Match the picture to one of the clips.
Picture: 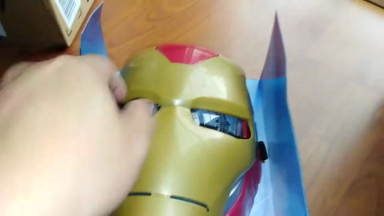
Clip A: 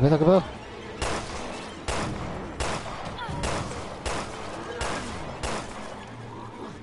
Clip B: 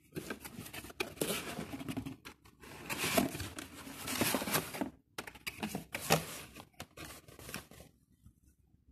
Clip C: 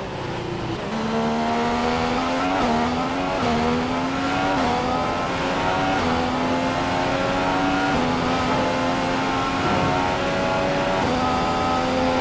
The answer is B